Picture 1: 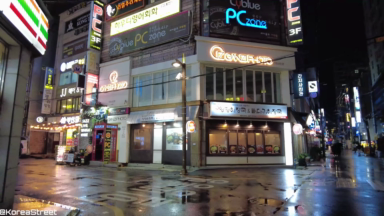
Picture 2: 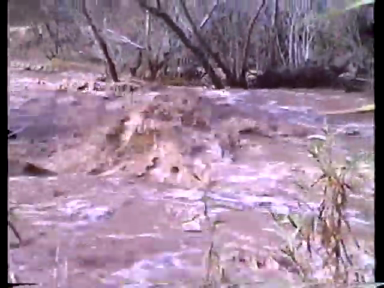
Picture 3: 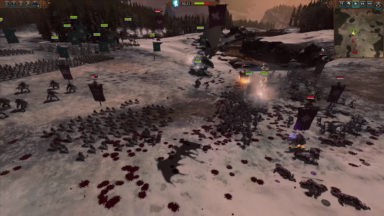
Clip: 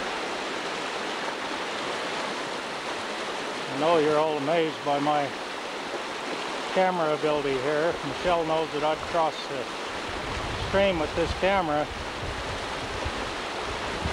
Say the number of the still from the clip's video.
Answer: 2